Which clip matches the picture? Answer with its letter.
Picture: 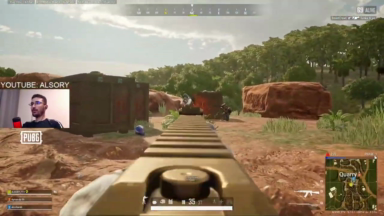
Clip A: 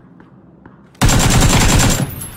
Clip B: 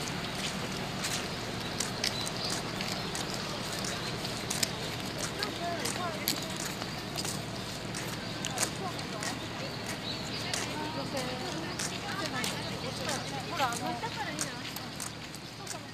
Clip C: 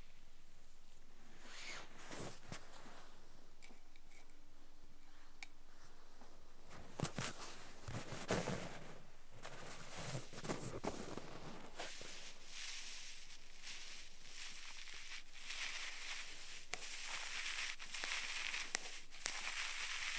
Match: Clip A